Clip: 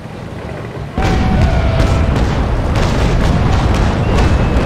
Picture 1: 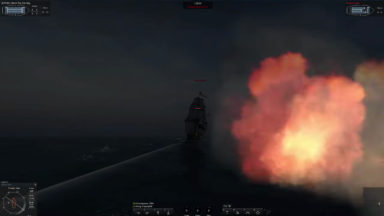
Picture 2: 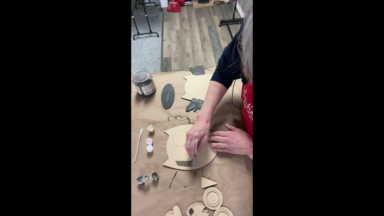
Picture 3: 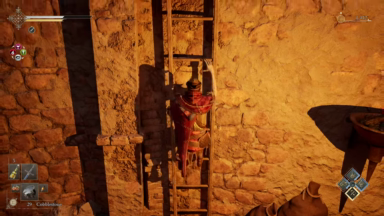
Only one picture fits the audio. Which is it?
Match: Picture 1